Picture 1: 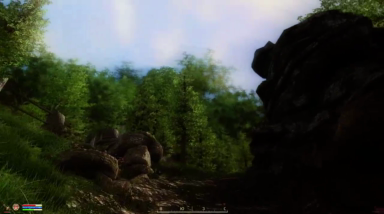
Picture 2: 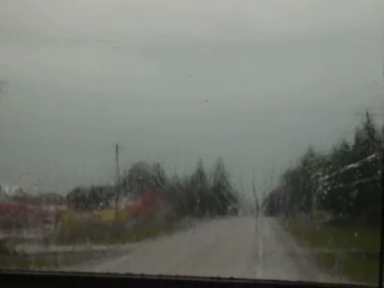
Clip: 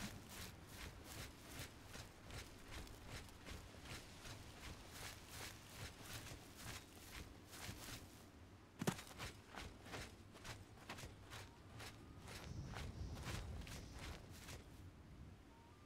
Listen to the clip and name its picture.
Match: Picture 1